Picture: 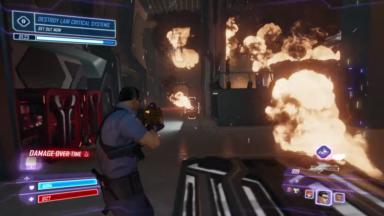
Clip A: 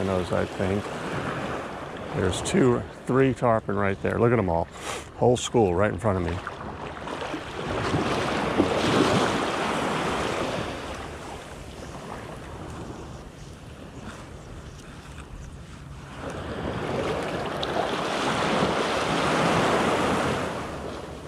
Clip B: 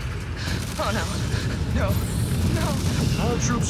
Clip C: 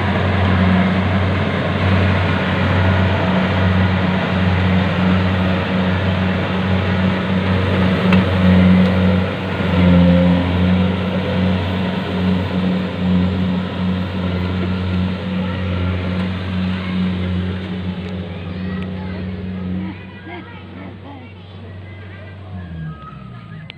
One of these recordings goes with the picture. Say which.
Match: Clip B